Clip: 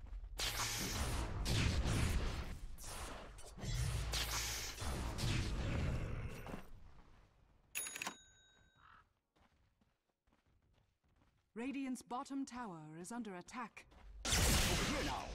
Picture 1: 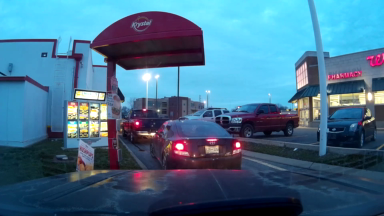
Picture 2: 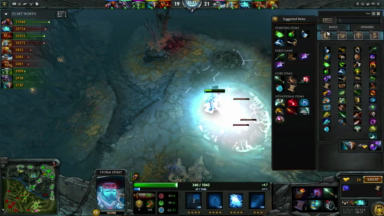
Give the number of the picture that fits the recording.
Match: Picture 2